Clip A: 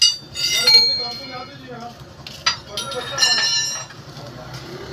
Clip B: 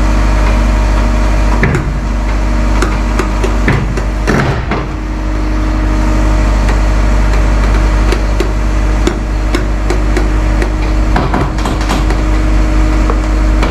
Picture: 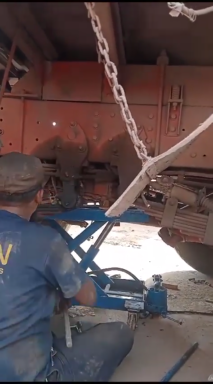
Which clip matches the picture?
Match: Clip A